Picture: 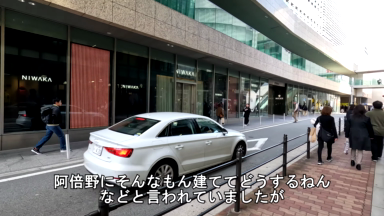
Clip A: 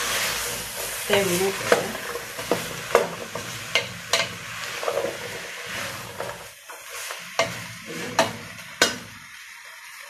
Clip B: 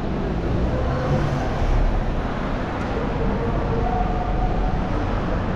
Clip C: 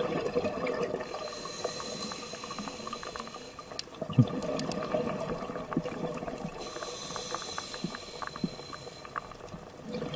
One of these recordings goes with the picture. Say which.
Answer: B